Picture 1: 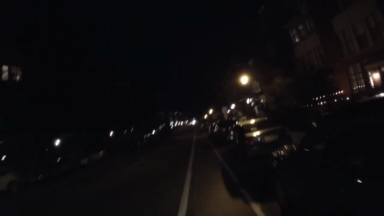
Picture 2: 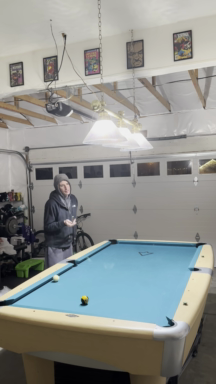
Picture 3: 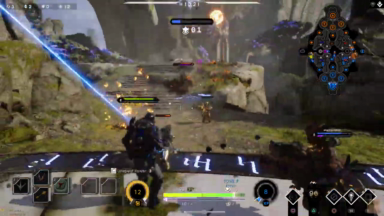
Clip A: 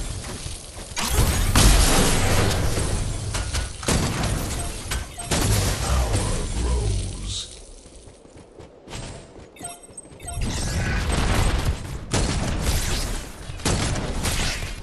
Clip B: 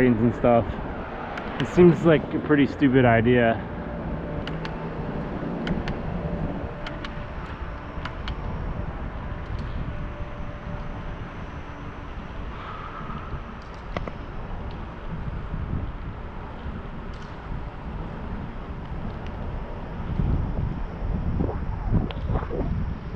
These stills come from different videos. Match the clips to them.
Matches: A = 3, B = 1